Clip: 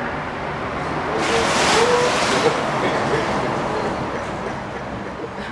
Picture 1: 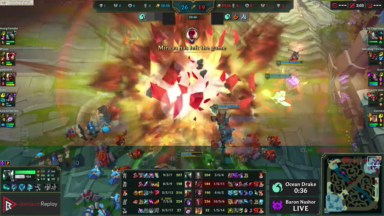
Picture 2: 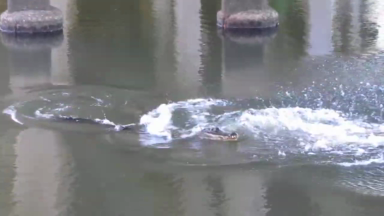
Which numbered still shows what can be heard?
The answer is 2